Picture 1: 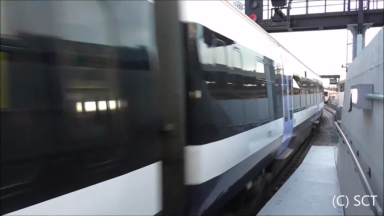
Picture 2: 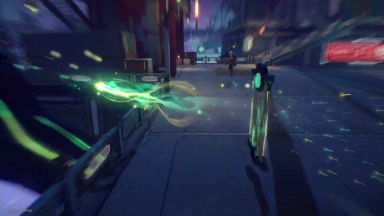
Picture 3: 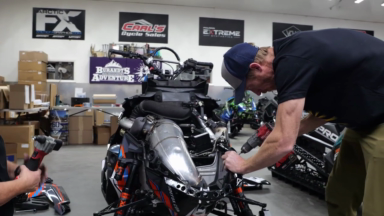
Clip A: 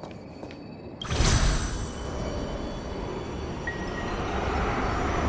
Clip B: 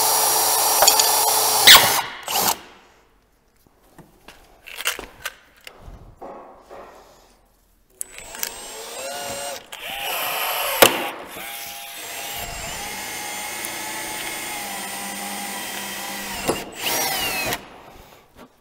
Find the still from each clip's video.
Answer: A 2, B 3